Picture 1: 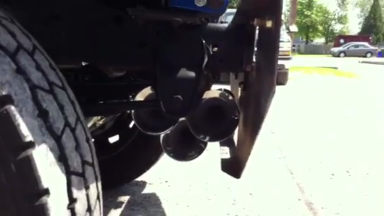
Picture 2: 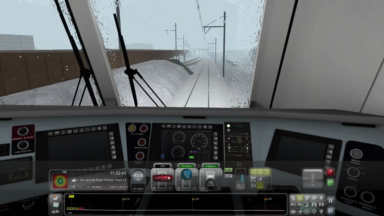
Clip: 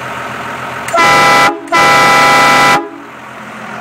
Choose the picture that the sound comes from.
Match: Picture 1